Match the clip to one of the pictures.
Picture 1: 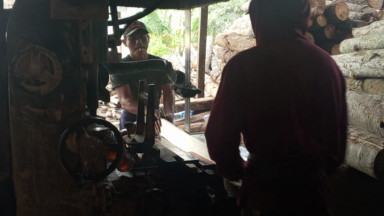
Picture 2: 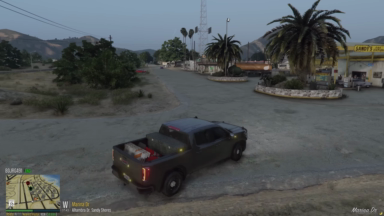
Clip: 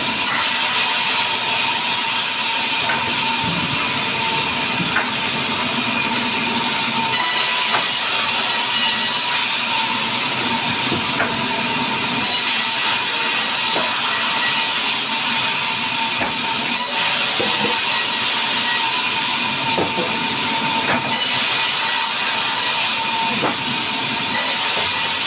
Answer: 1